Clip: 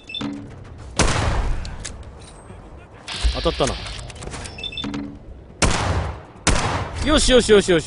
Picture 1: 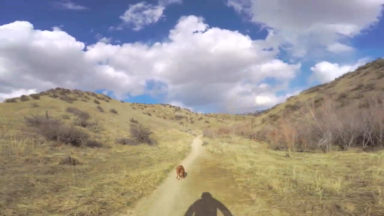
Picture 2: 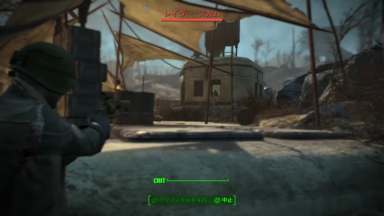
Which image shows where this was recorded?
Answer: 2